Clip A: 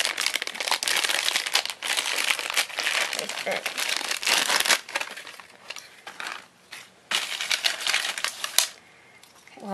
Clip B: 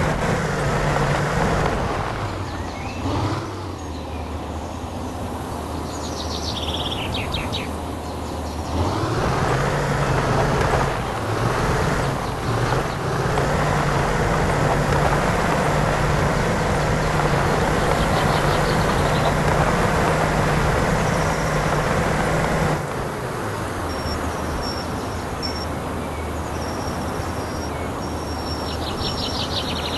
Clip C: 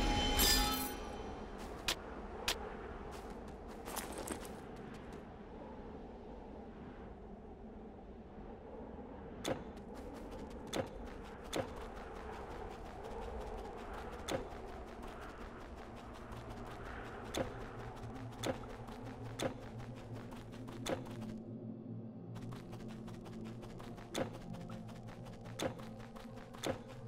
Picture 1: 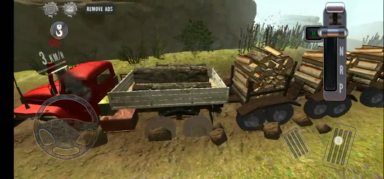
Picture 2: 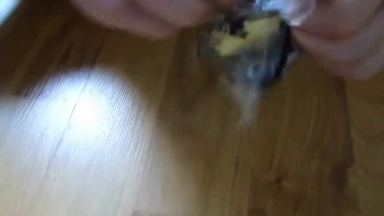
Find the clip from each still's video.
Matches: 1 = B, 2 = A